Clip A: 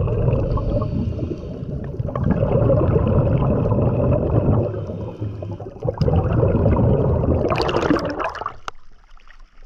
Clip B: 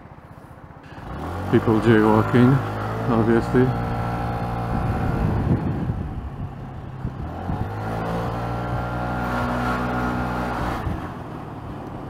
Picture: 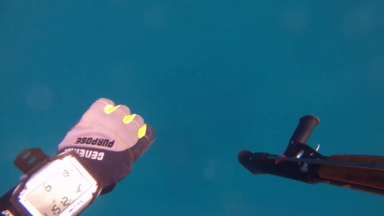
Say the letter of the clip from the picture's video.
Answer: A